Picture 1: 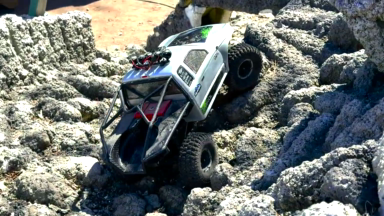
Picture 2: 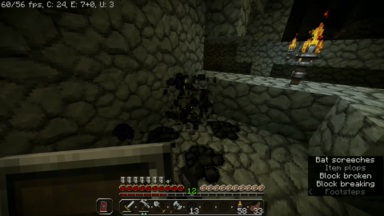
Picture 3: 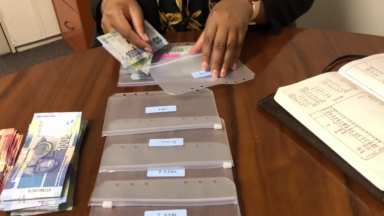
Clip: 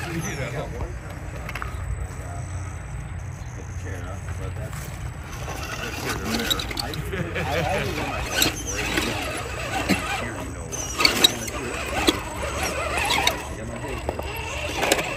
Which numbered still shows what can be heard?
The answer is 1